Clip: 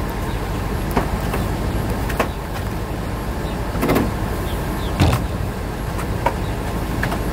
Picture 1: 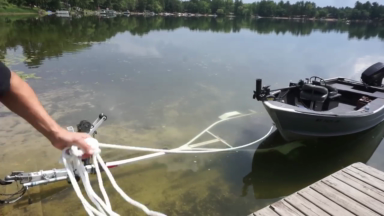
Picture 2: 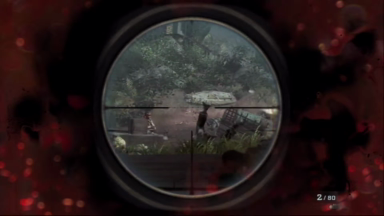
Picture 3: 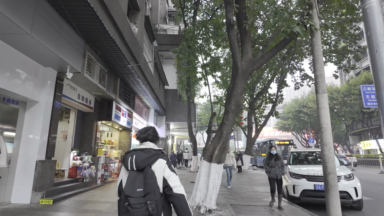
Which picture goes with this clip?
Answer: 1